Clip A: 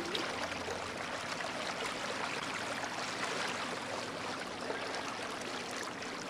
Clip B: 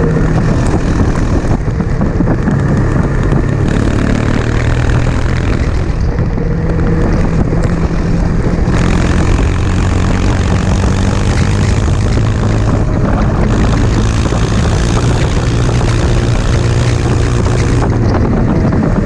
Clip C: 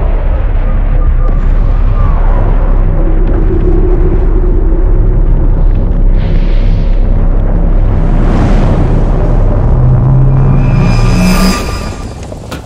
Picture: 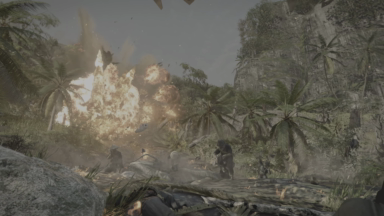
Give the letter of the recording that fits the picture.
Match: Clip C